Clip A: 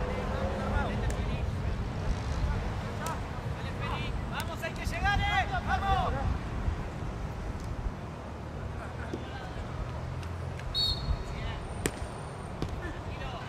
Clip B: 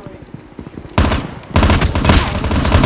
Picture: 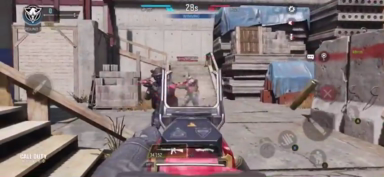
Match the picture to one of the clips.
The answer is B